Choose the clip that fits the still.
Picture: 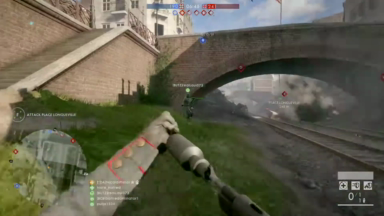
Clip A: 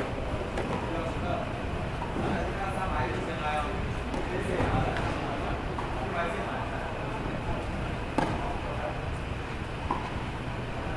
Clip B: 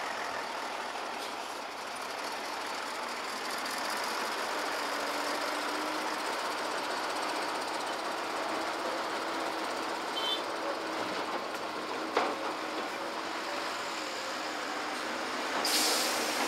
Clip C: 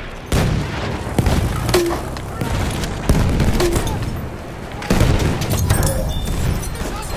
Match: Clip C